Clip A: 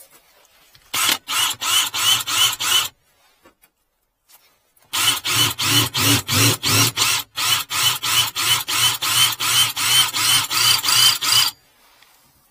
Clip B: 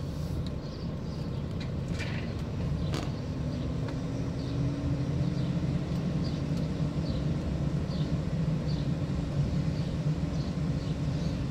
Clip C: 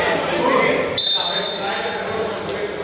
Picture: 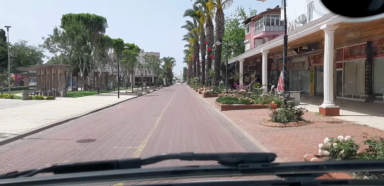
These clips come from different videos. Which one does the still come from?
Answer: B